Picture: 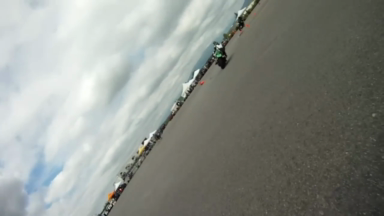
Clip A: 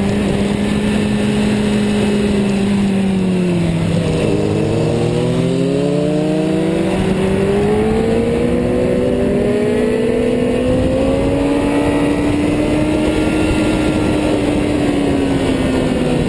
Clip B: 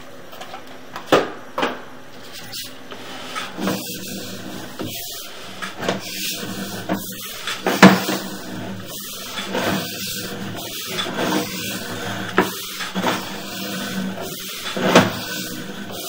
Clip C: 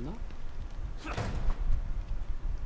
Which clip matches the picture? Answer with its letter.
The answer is A